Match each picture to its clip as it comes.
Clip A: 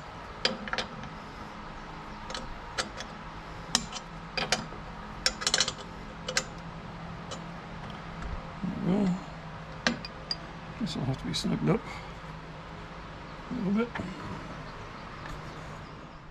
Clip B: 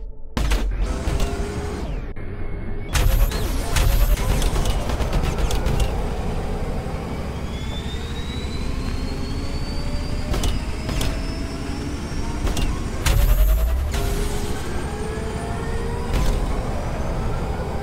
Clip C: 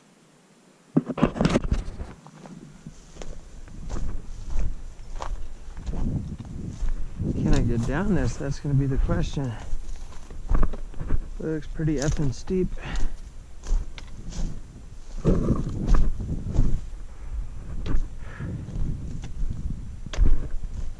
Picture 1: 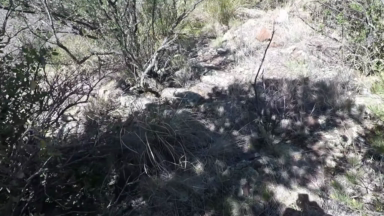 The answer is C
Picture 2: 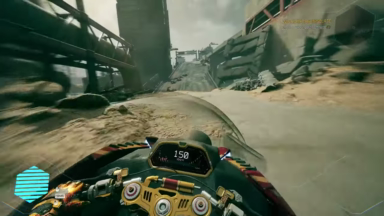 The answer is B